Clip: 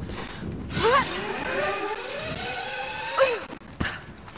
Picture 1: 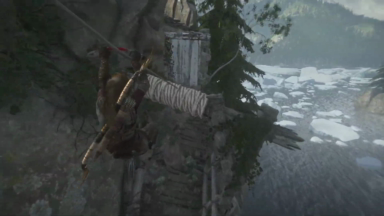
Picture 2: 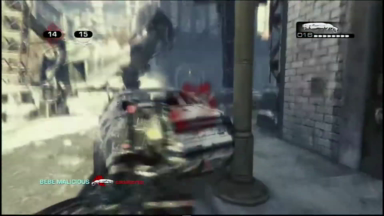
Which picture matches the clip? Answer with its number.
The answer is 1